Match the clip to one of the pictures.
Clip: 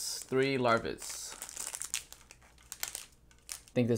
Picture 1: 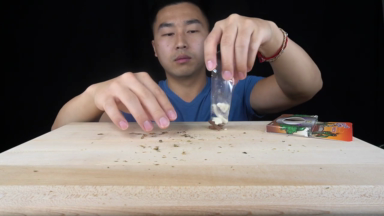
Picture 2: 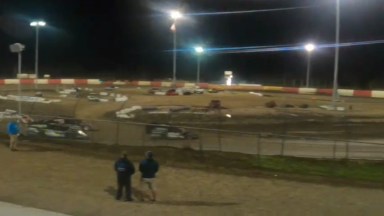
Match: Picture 1